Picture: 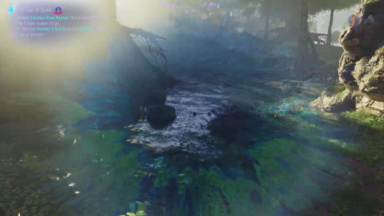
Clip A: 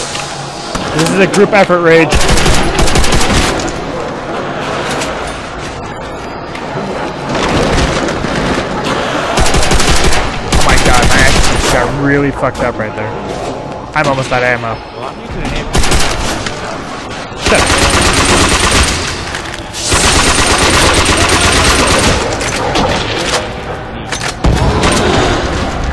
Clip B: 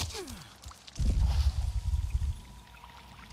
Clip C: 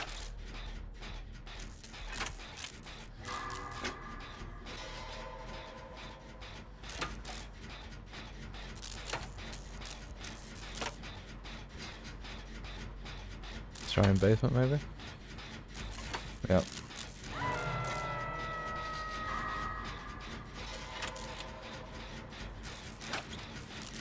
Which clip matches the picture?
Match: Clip B